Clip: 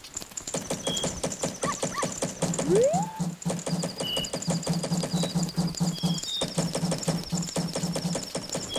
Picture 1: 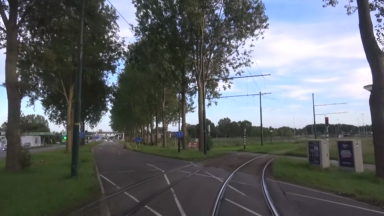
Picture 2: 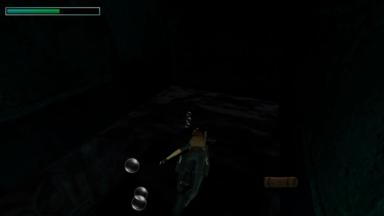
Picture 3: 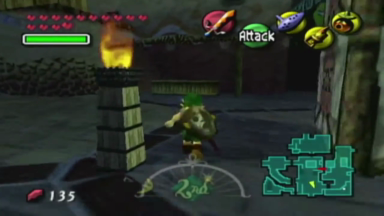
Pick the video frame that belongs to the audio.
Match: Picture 3